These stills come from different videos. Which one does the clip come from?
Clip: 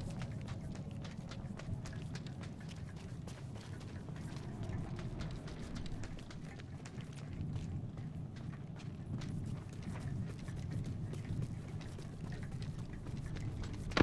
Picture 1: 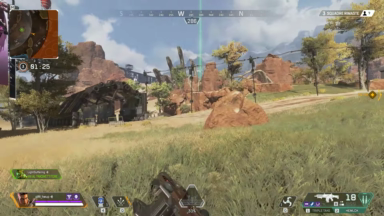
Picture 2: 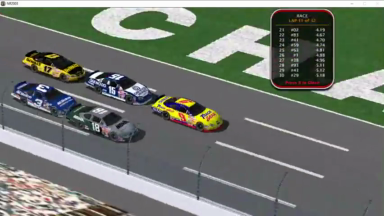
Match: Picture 1